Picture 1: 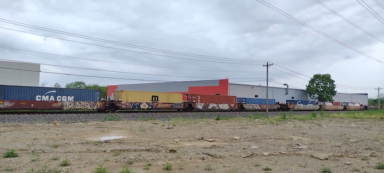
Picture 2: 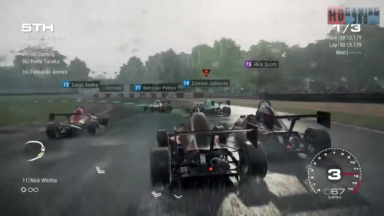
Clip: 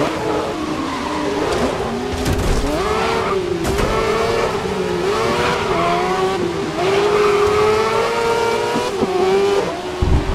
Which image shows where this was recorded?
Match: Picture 2